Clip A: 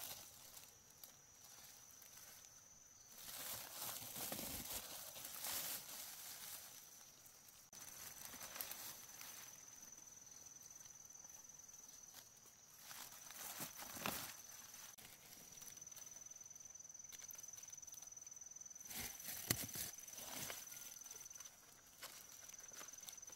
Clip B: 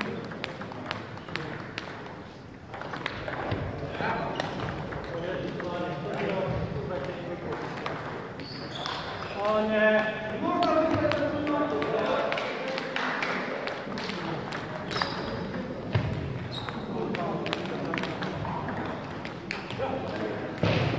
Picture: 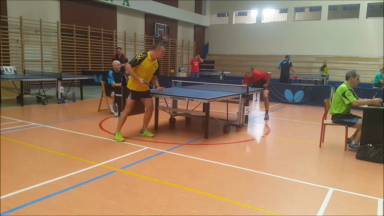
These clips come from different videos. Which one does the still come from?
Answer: B